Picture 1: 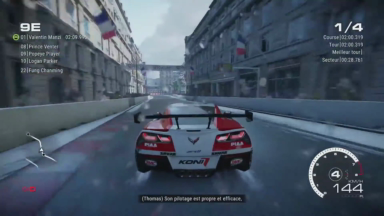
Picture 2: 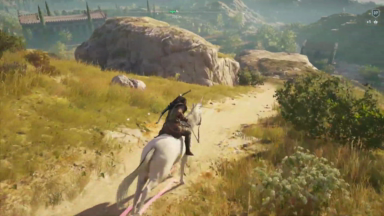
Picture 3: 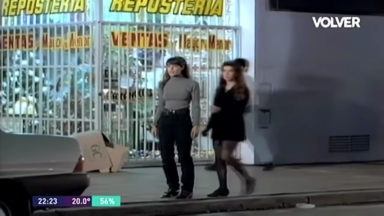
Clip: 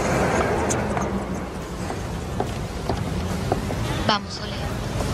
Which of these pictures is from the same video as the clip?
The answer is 3